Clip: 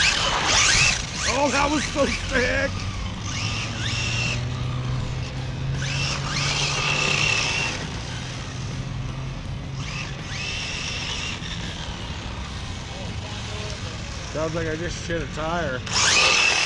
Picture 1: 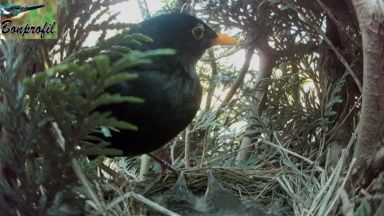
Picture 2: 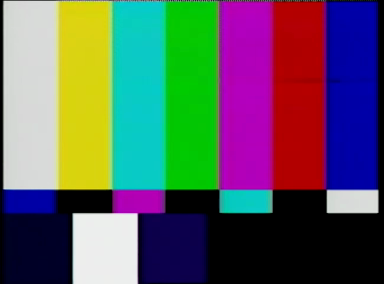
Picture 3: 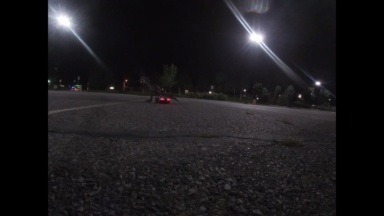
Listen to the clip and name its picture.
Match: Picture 3